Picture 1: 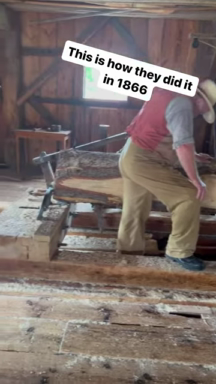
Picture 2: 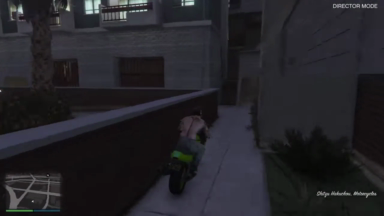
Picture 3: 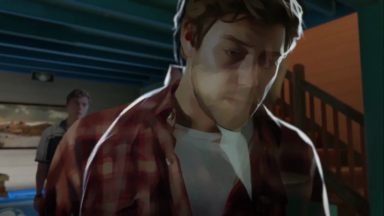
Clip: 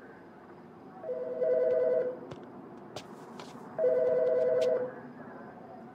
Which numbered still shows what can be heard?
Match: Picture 3